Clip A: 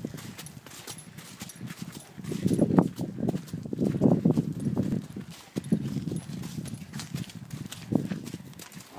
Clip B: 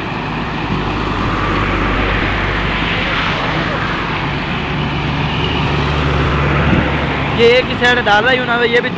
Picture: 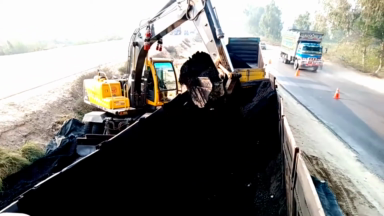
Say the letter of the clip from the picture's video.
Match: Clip B